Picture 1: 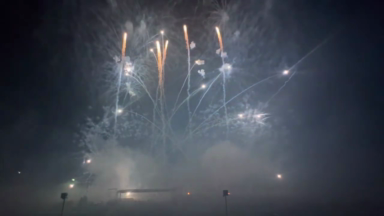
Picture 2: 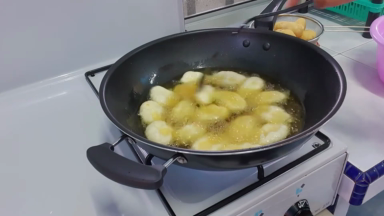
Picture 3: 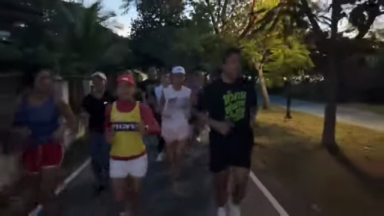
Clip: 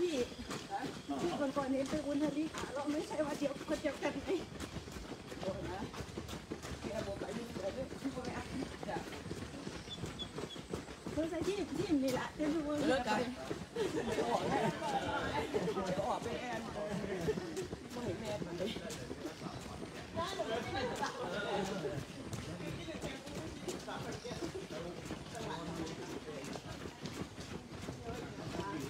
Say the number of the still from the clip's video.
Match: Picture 3